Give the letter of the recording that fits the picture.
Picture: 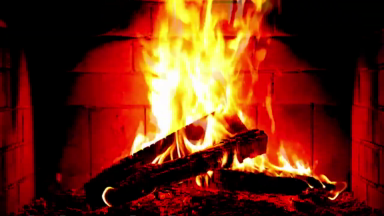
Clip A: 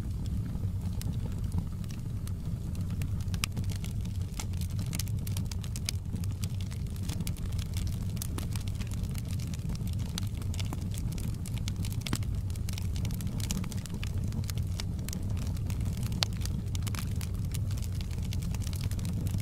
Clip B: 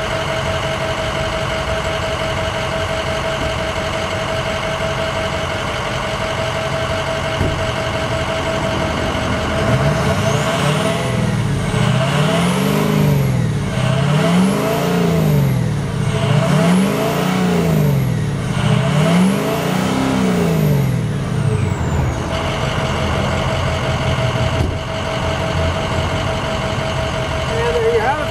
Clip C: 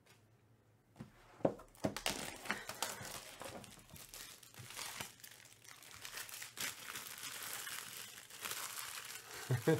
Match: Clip A